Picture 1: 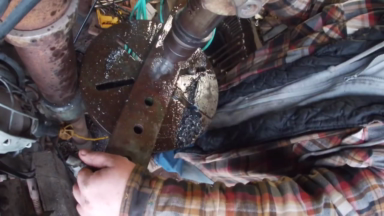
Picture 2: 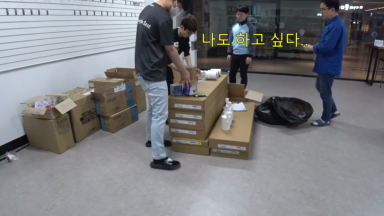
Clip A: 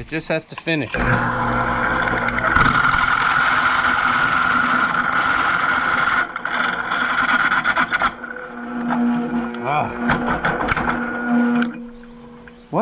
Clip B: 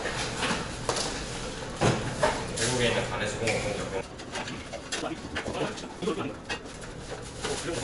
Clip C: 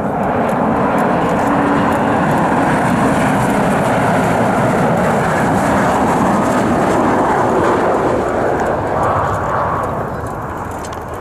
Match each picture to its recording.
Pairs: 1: A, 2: B